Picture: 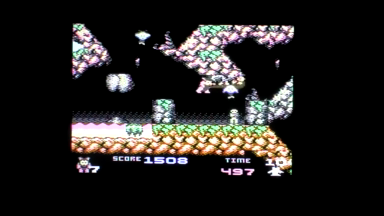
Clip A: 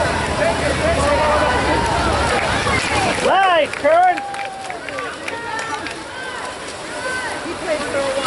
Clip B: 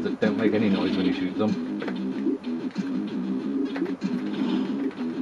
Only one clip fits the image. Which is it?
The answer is B